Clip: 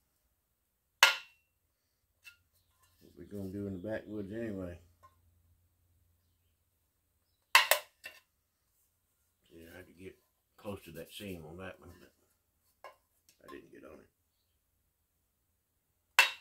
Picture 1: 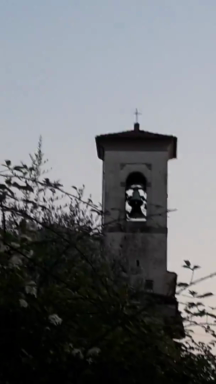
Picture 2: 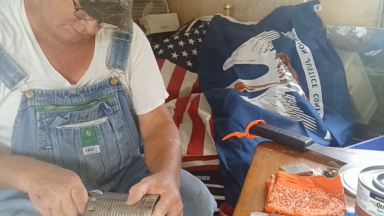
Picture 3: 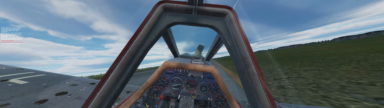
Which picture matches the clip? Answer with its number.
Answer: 2